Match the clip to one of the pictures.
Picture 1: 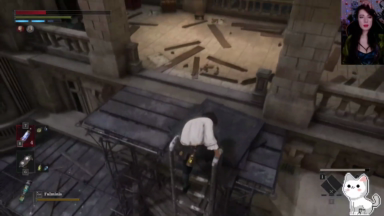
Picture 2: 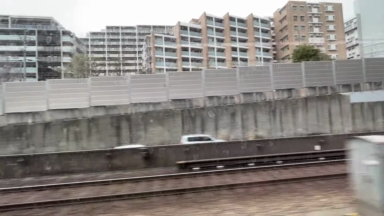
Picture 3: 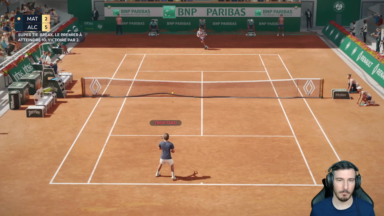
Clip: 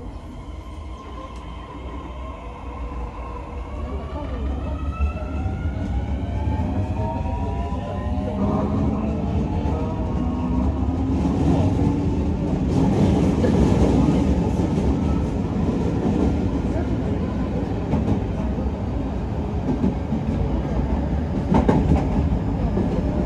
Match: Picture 2